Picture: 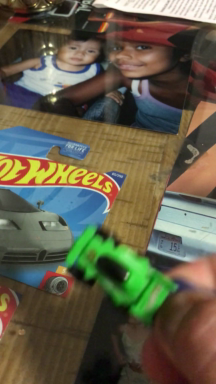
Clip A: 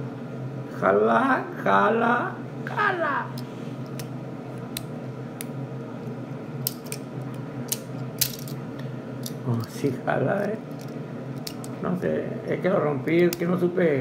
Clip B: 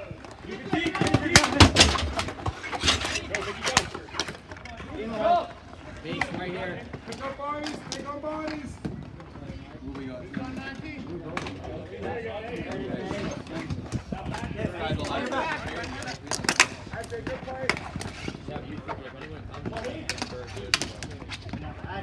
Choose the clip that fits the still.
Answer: A